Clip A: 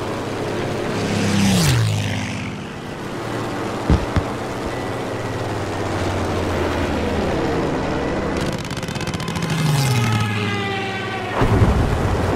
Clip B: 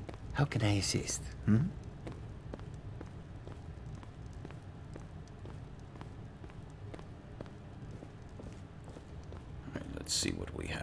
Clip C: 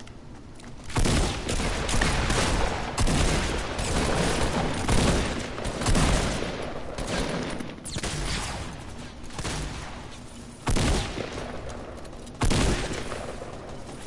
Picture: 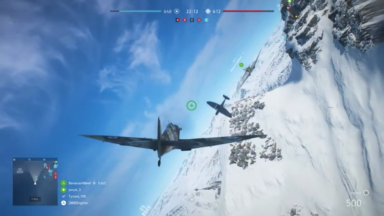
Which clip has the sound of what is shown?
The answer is A